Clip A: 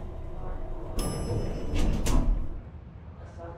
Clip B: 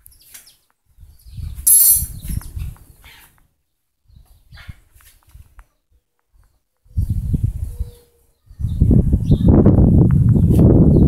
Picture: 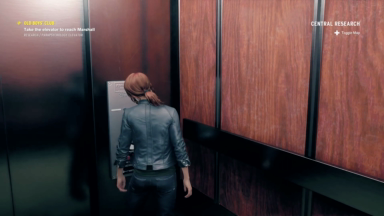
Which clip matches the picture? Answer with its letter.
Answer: A